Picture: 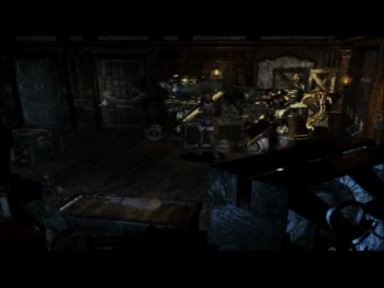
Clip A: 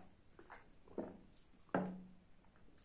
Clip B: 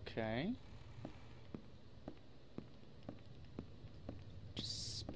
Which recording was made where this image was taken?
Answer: B